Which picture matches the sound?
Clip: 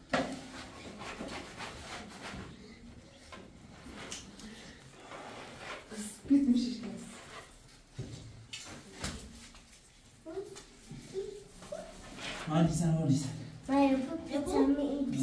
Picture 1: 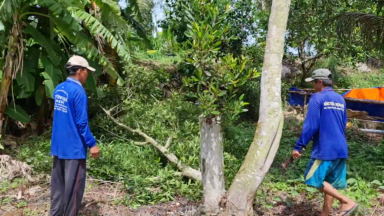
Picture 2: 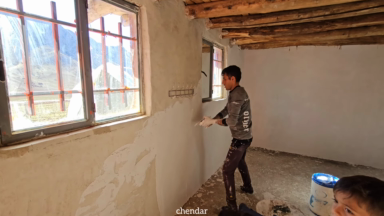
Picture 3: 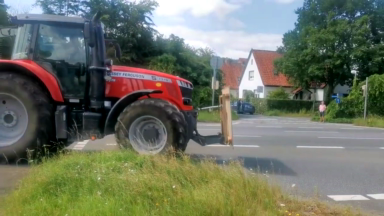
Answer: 2